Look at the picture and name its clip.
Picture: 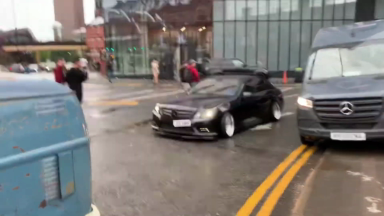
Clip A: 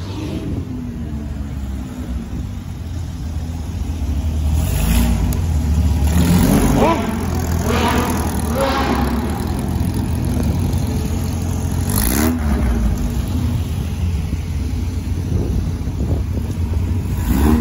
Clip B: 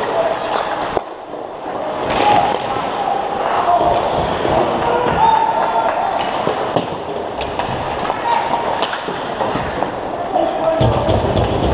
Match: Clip A